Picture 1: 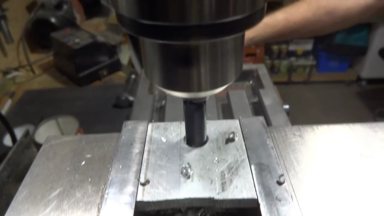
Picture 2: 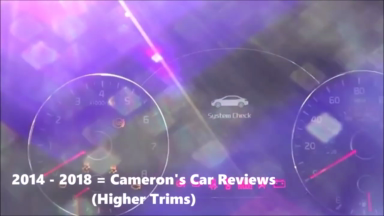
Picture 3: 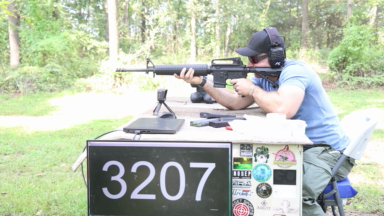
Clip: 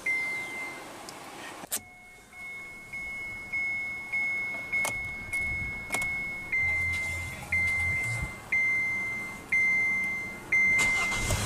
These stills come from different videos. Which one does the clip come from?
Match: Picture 2